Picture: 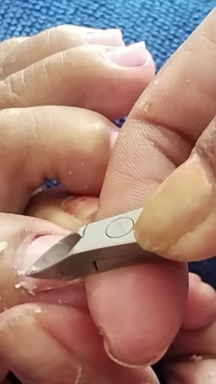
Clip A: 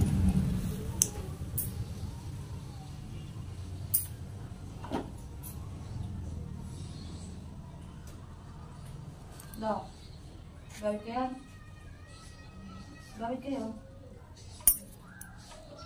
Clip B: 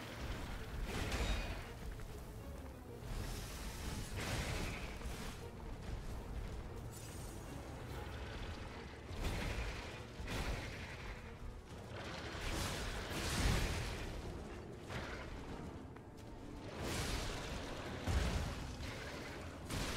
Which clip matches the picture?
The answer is A